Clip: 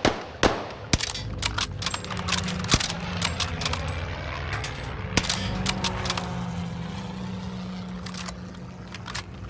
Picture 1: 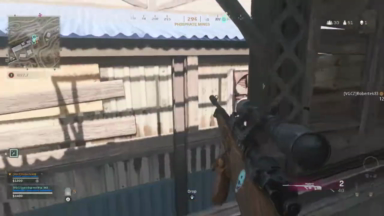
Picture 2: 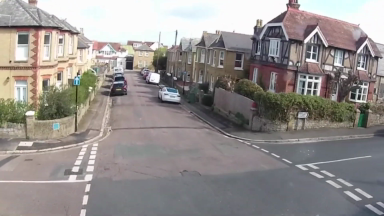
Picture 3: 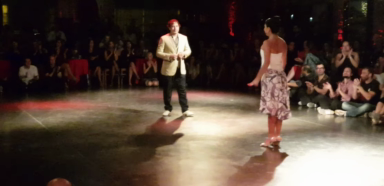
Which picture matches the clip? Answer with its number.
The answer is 1